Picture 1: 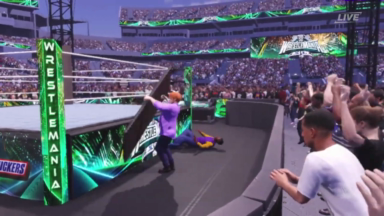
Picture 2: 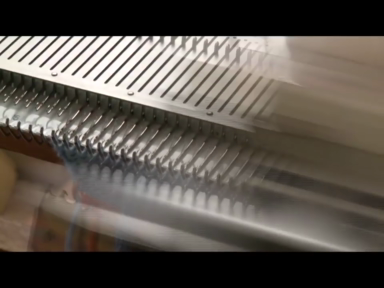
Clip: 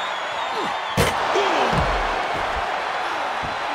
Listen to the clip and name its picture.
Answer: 1